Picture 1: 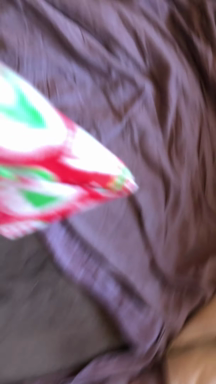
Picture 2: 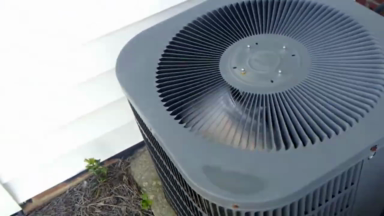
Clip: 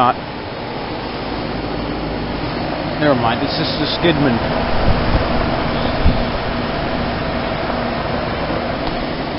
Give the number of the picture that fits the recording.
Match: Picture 2